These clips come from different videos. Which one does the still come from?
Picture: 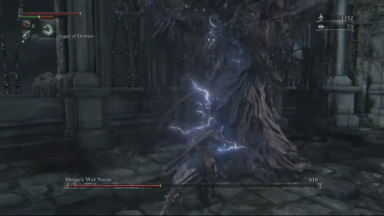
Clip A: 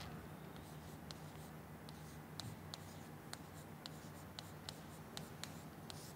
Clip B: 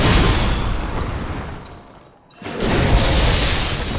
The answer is B